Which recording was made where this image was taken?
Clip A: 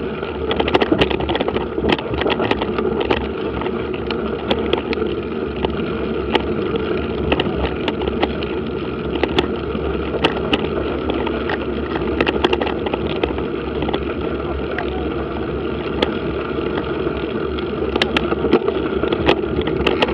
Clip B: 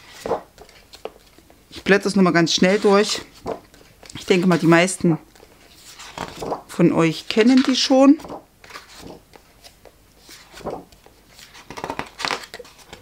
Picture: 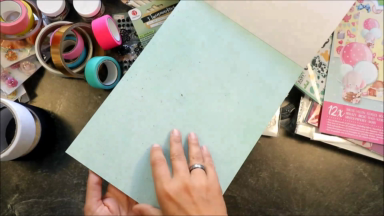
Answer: B